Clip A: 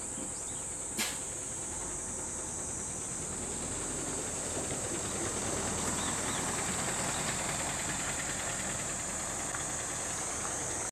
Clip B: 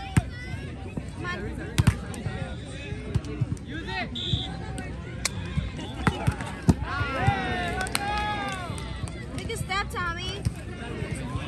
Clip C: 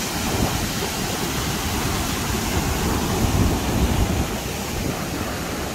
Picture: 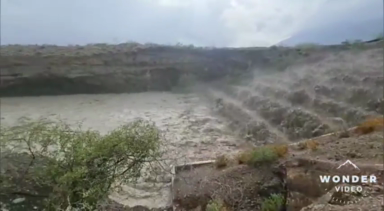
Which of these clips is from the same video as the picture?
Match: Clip C